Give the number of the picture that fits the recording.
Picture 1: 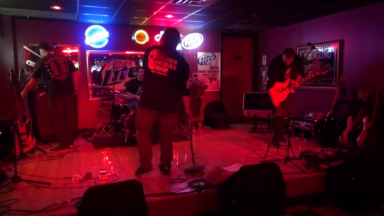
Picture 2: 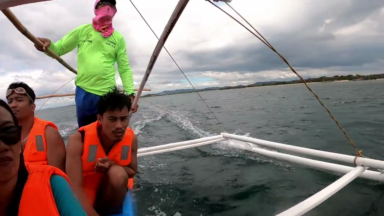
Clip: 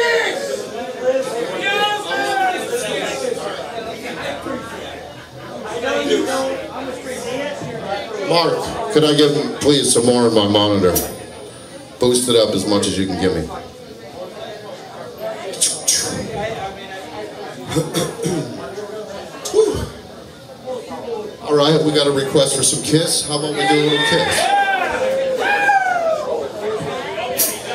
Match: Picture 1